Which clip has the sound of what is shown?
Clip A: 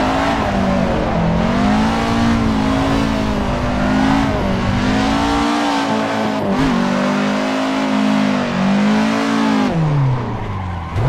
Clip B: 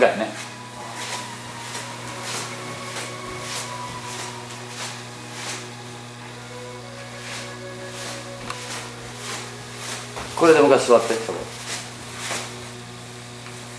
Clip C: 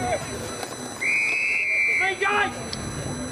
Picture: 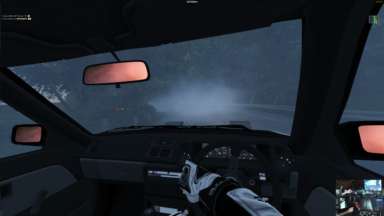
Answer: A